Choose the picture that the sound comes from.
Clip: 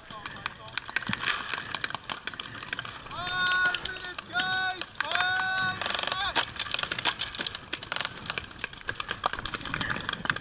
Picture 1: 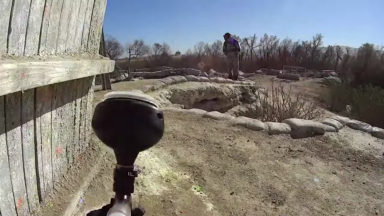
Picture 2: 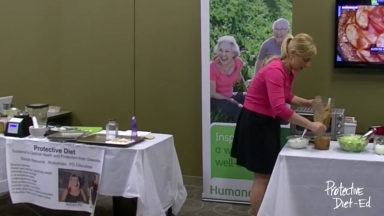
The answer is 1